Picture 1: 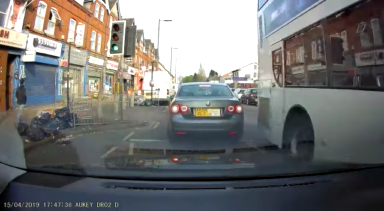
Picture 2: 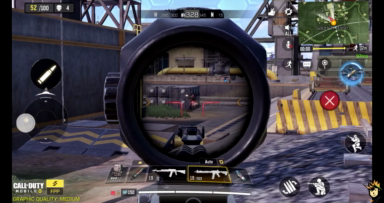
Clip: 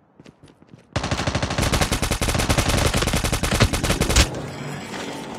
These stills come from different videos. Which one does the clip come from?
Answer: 2